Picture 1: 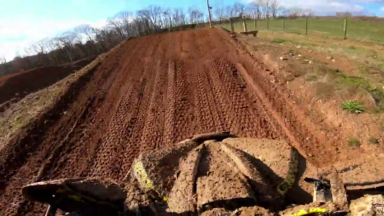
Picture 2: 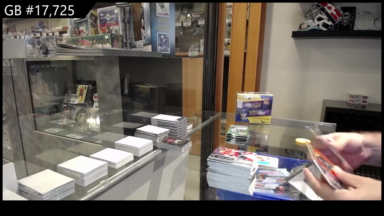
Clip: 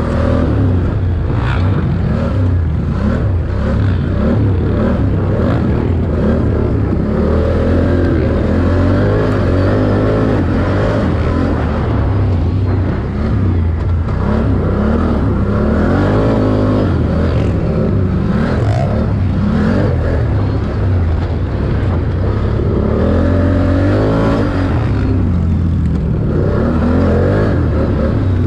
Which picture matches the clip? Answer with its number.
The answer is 1